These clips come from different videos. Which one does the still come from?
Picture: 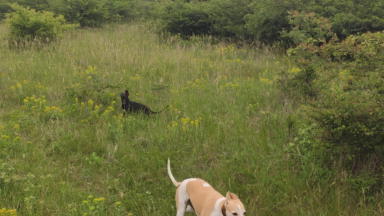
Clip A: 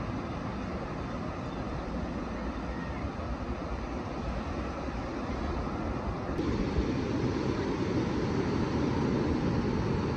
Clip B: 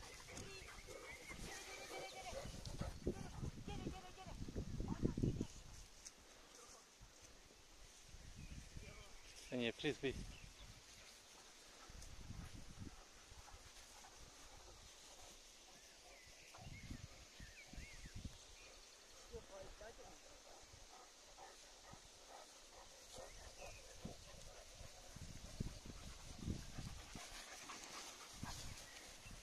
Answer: B